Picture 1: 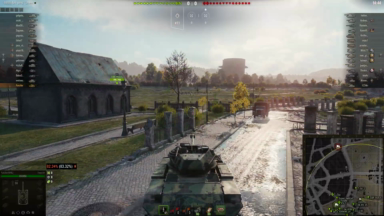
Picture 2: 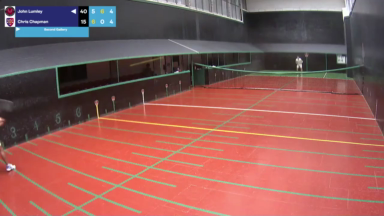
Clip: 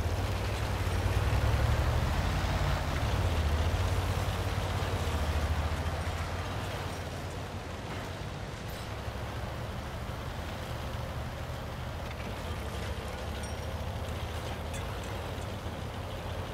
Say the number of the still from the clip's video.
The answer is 1